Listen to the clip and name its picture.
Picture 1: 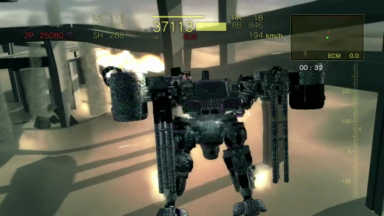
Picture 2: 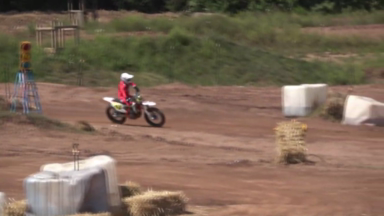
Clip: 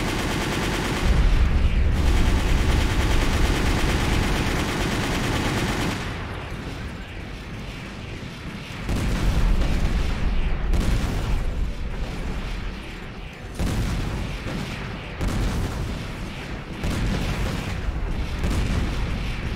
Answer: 1